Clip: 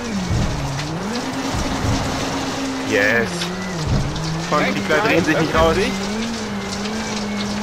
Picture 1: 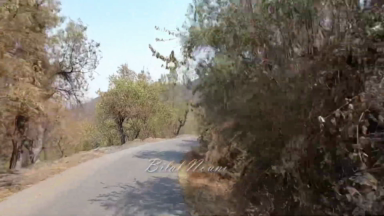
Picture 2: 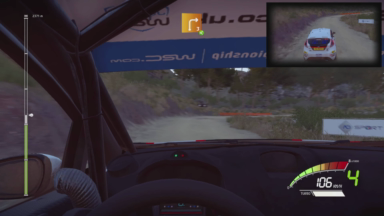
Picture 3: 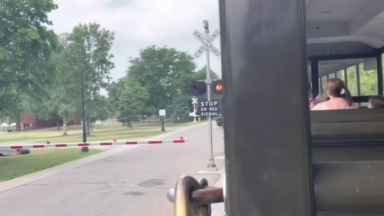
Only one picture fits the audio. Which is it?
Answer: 2